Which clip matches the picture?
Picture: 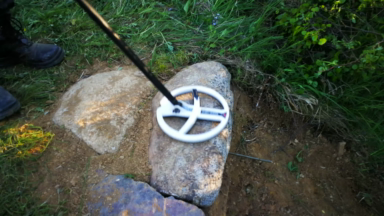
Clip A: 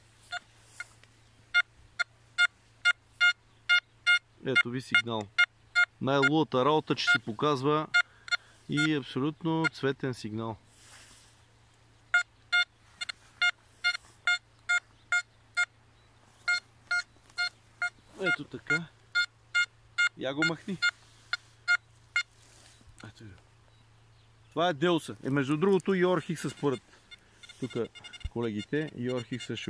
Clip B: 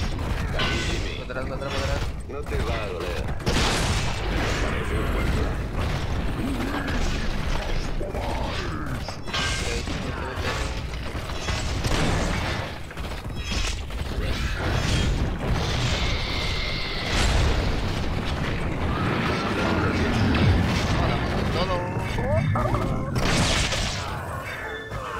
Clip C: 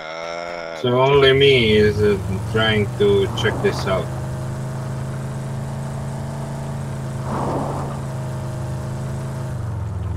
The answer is A